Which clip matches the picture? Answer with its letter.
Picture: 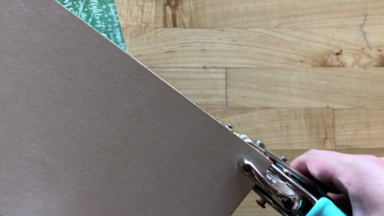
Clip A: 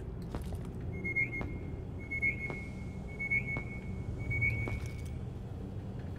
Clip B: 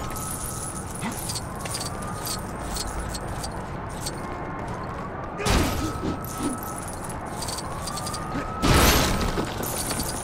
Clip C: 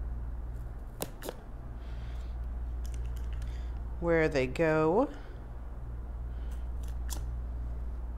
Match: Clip C